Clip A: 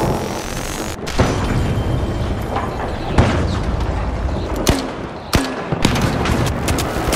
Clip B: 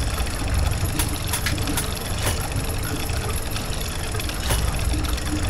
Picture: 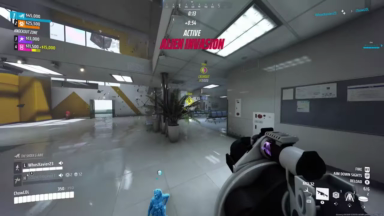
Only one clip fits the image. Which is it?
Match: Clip A